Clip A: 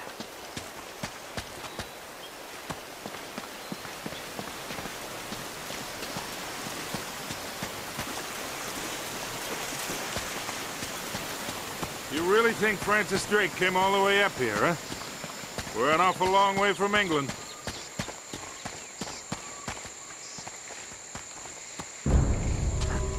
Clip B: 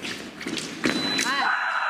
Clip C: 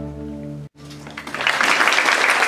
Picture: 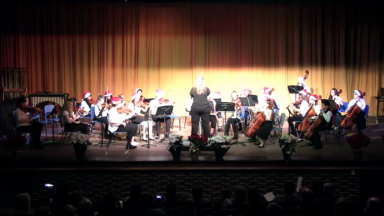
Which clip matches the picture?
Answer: C